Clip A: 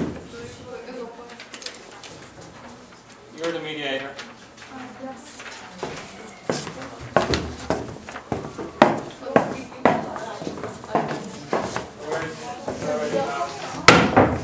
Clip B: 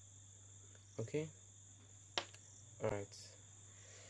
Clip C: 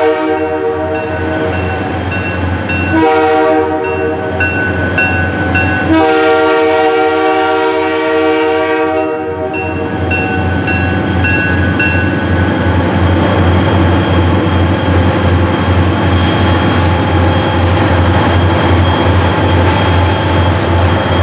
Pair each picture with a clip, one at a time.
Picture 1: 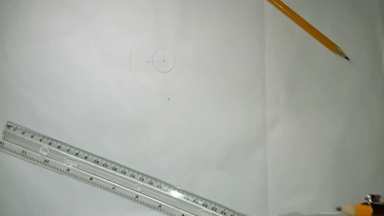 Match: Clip B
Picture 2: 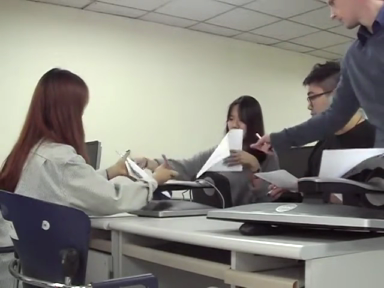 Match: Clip A